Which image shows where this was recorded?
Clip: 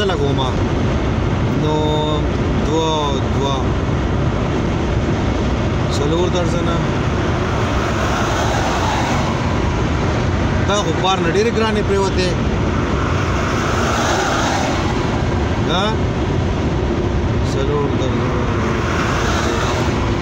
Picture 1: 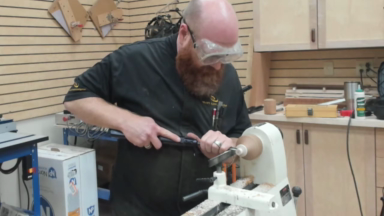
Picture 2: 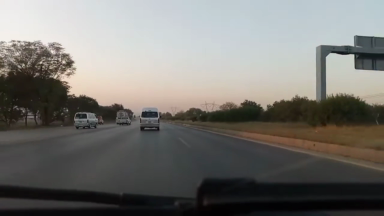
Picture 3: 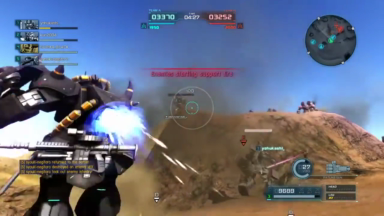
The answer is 2